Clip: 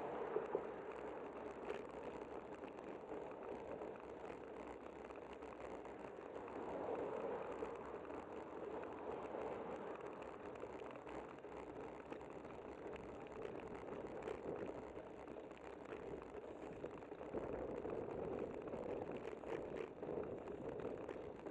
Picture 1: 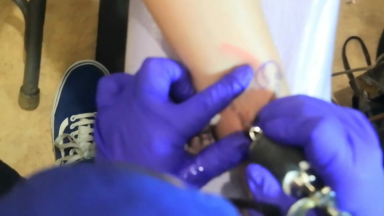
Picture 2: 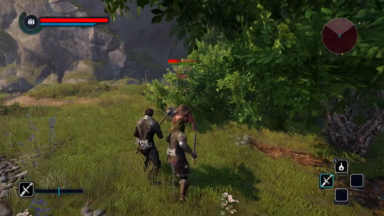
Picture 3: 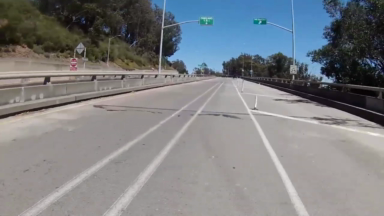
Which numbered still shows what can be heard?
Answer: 3